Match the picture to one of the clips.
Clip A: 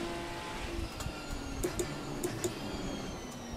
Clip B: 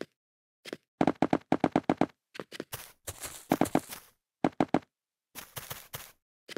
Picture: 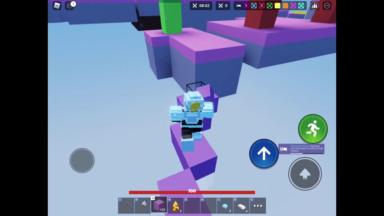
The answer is B